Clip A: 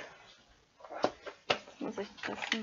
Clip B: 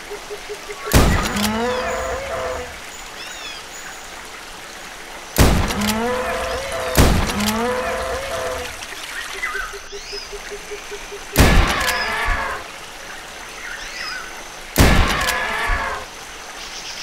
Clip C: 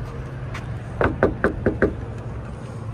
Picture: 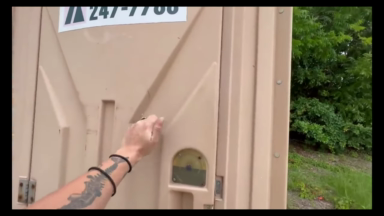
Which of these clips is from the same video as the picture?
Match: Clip C